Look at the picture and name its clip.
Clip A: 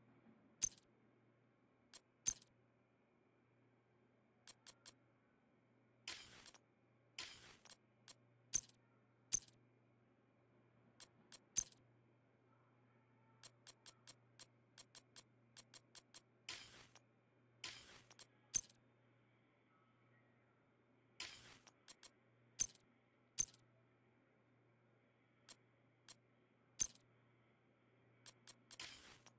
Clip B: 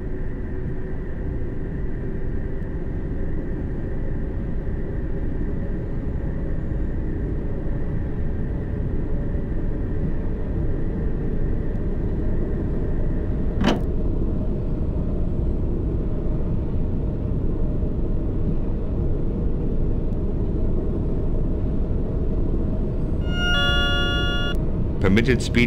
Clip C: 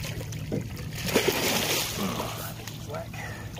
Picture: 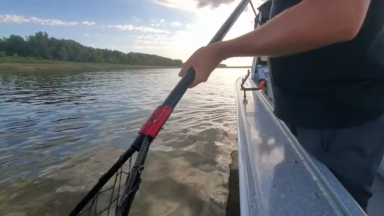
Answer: C